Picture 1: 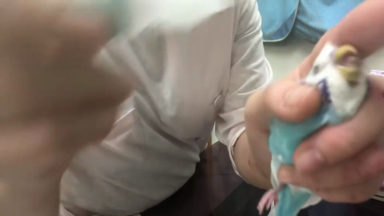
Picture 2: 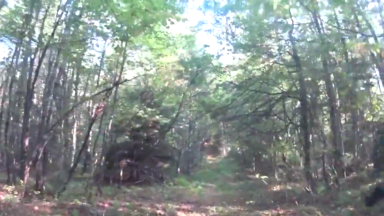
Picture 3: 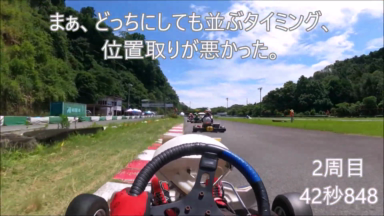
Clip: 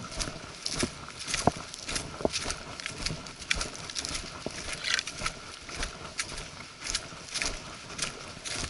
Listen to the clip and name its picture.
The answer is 2